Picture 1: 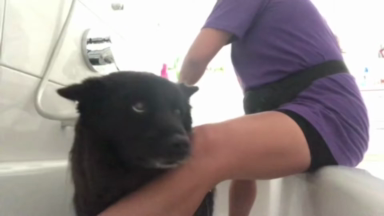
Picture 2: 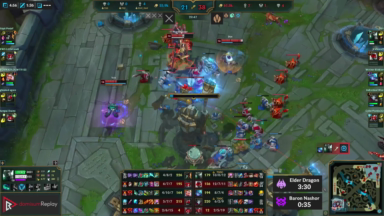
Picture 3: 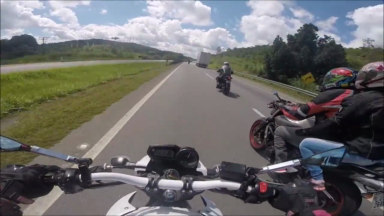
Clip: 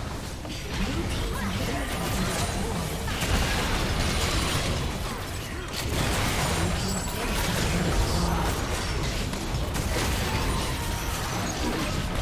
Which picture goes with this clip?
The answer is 2